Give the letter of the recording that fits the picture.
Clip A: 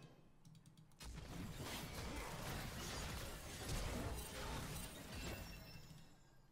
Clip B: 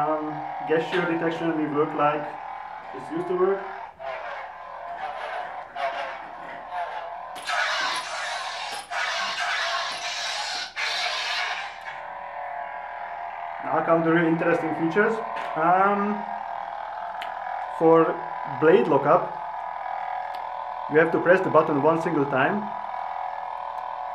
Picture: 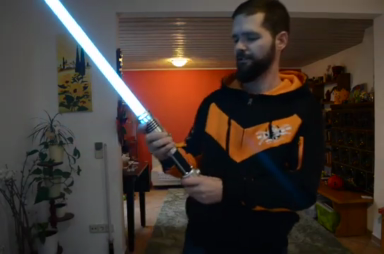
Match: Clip B